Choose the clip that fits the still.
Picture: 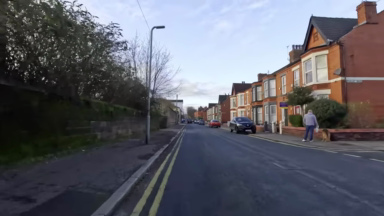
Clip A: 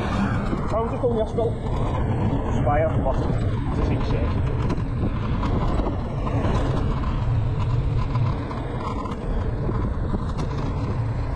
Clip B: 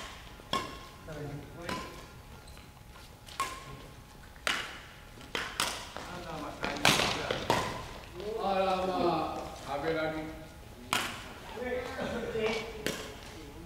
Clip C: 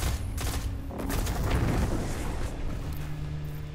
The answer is A